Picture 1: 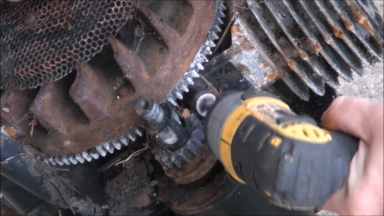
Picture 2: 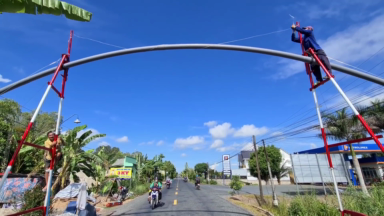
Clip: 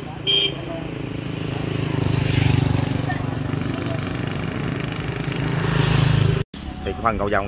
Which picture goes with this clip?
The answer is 2